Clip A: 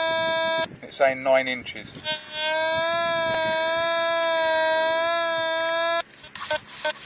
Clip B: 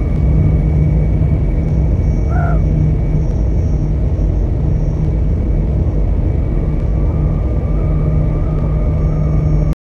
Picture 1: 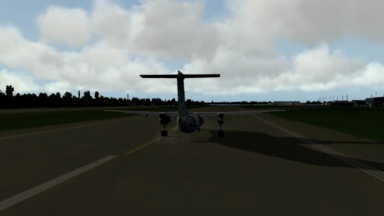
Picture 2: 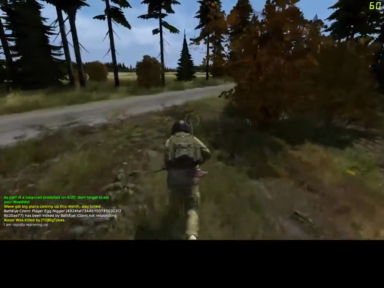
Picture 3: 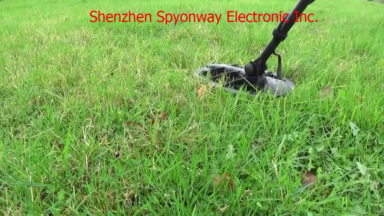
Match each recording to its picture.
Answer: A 3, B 1